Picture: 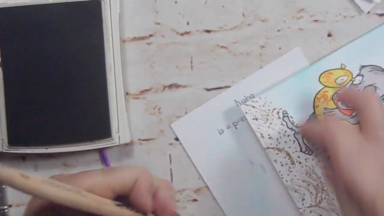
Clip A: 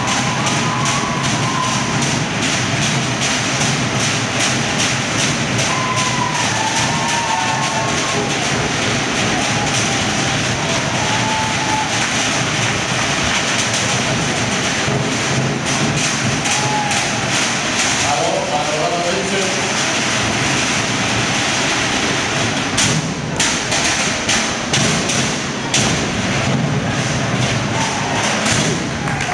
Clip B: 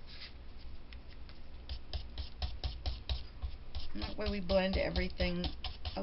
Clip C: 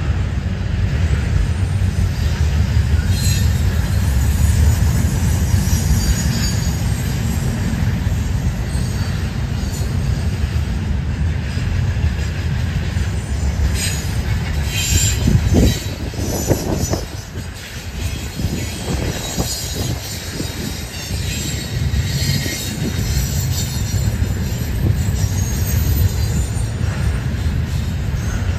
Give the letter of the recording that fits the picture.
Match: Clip B